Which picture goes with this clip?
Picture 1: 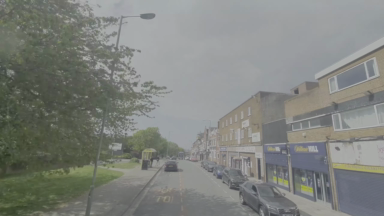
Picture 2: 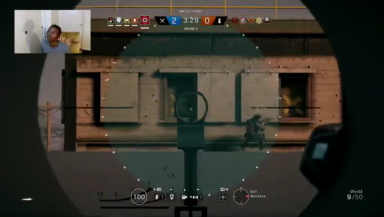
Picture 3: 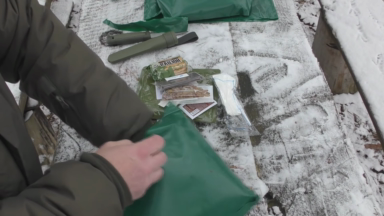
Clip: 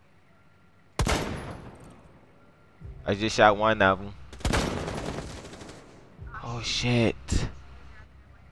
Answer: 2